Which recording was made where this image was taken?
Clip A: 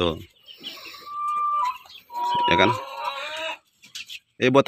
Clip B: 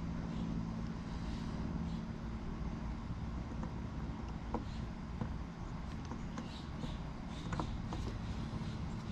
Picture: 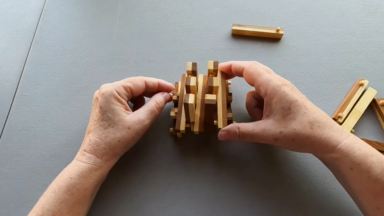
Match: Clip B